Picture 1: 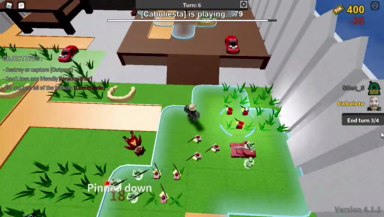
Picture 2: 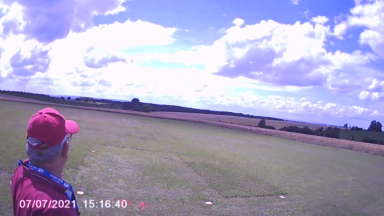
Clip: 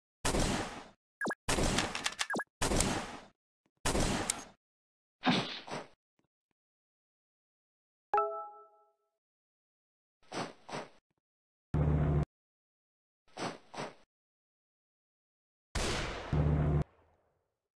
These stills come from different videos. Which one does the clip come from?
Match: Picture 1